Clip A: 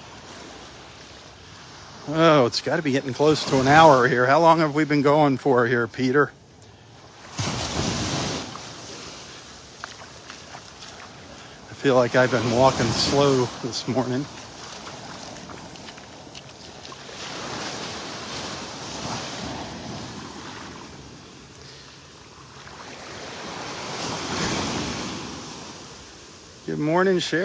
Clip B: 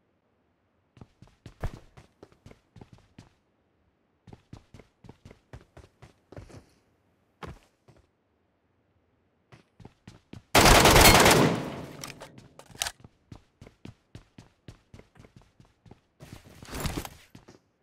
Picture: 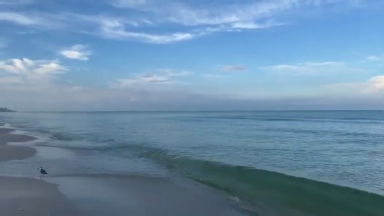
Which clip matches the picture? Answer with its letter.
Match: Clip A